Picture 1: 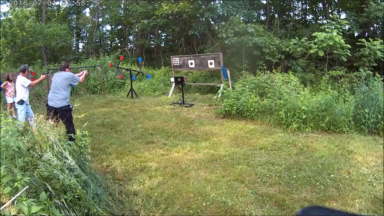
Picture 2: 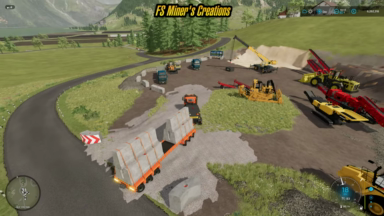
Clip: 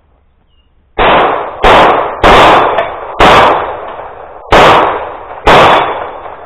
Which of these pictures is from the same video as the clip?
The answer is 1